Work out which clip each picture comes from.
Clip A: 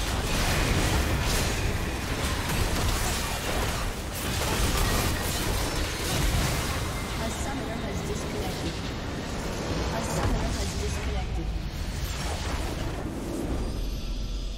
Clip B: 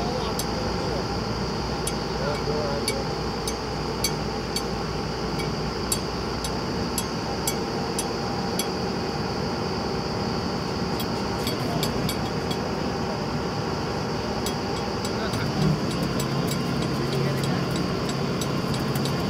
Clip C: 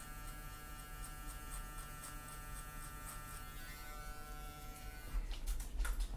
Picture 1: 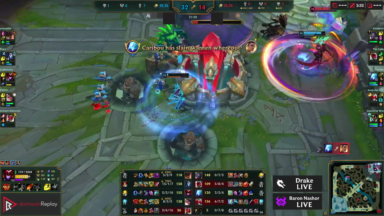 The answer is A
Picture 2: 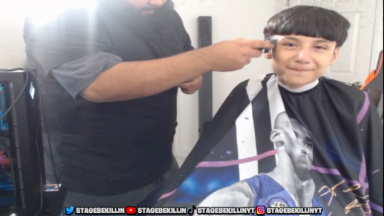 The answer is C